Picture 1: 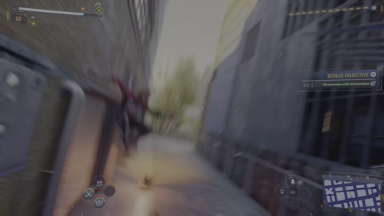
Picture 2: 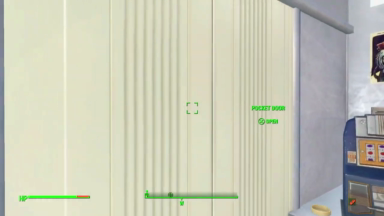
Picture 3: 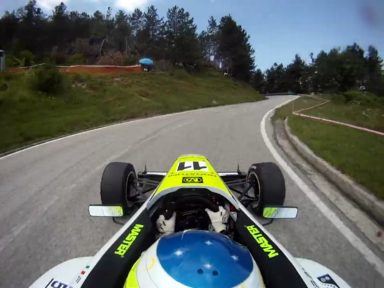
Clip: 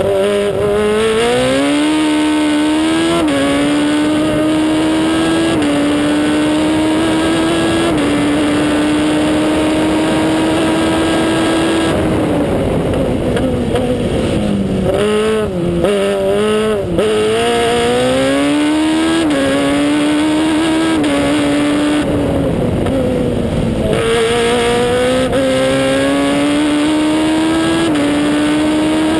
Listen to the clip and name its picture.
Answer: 3